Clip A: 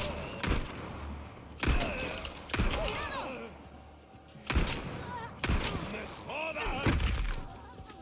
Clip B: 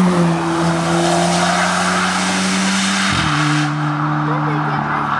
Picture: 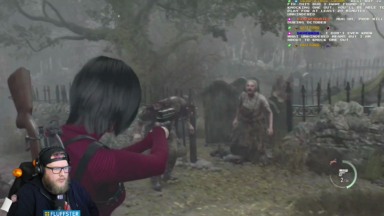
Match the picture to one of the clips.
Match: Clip A